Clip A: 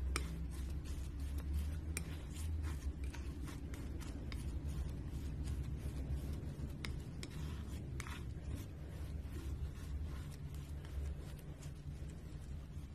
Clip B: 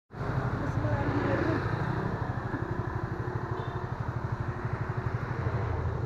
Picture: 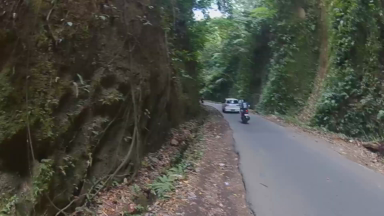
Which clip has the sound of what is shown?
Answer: B